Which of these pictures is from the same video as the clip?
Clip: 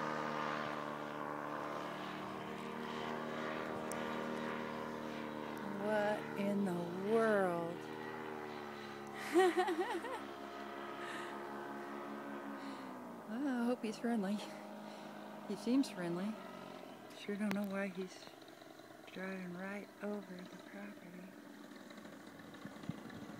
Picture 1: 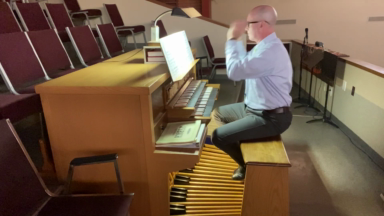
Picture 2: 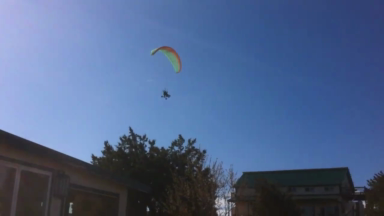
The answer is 2